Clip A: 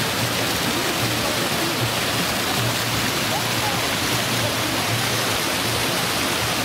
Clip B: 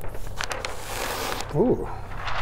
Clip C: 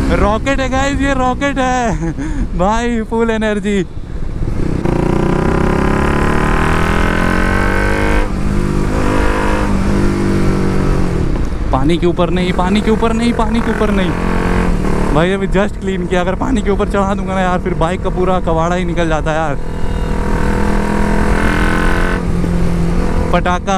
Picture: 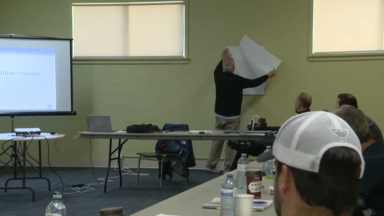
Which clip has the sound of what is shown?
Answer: B